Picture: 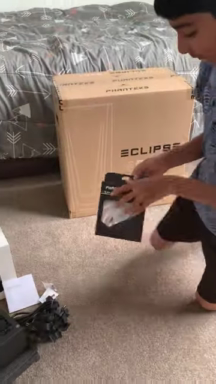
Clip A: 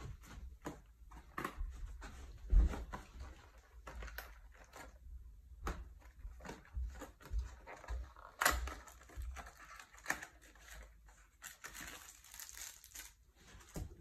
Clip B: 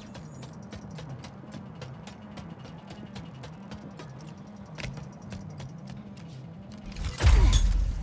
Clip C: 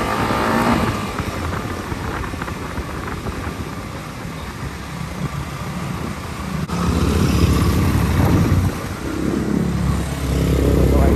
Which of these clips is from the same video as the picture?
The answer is A